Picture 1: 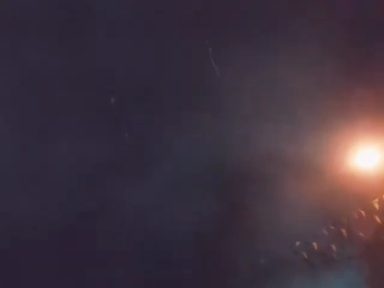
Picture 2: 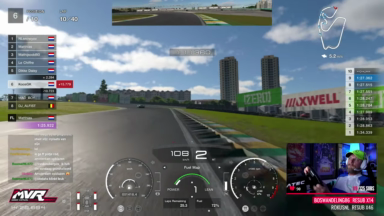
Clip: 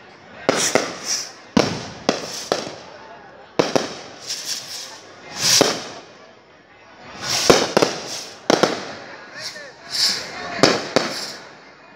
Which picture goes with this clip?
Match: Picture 1